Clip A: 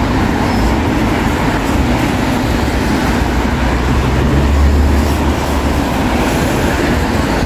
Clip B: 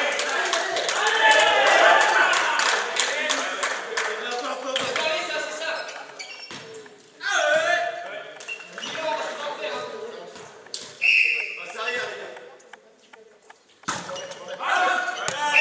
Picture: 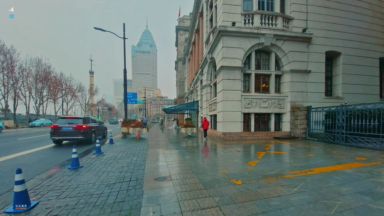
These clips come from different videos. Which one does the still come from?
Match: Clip A